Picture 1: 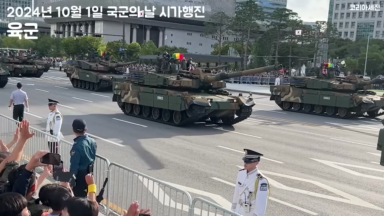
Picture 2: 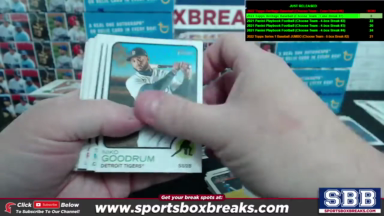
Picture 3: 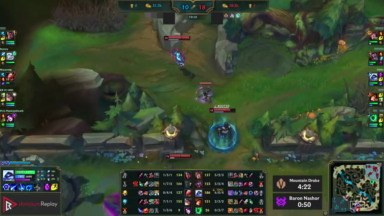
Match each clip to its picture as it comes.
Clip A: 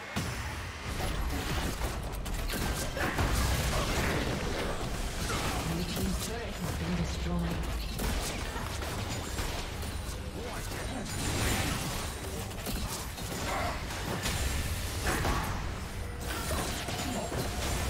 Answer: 3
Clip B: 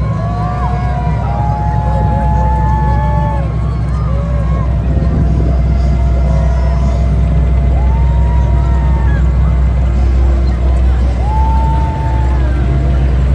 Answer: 1